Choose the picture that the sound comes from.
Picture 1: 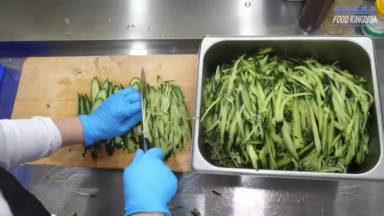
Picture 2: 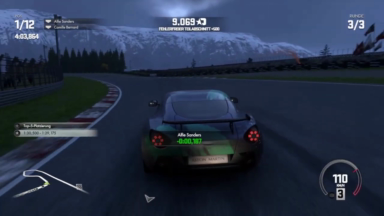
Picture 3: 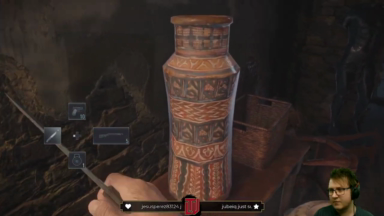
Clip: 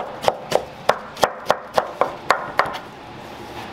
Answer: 1